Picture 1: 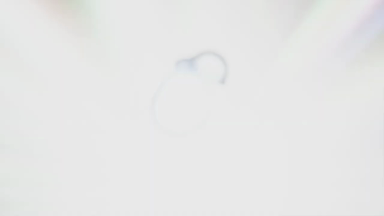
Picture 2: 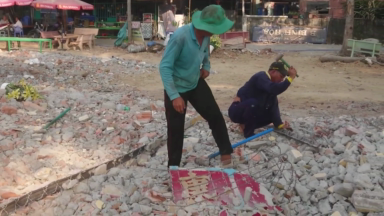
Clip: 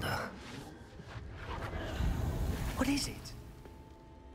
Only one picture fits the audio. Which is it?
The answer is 1